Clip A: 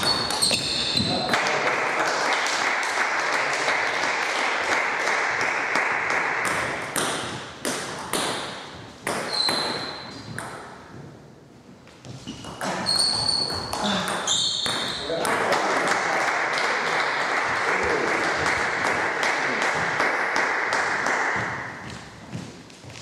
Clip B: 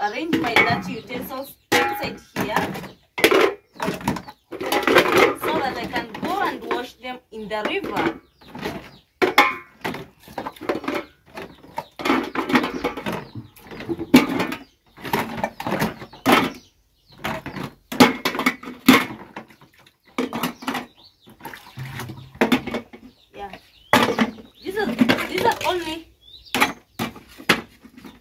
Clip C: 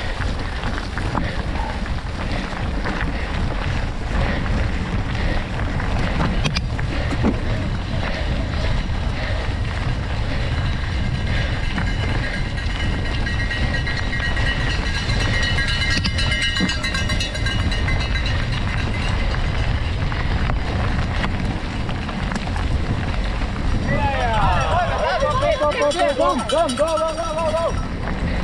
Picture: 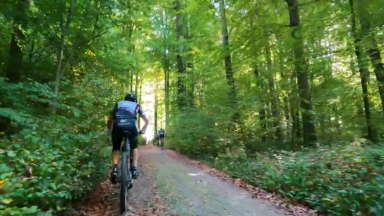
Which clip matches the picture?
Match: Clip C